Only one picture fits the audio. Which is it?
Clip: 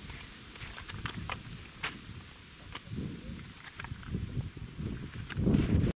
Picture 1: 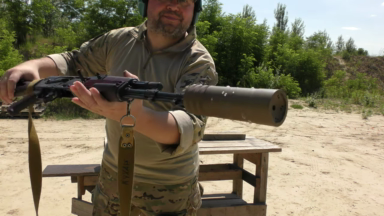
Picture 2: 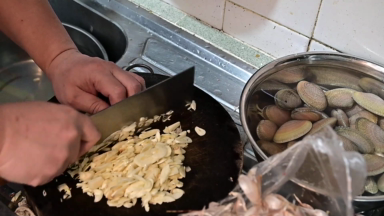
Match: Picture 1